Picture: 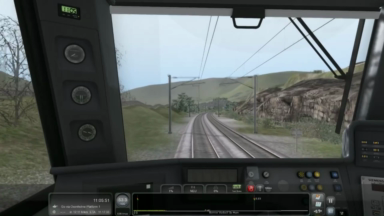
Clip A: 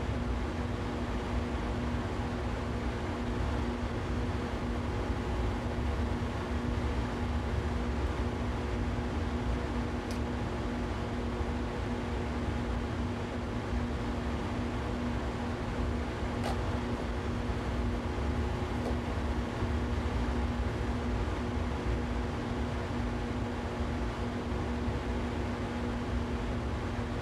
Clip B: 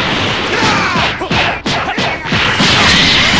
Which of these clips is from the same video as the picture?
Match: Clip A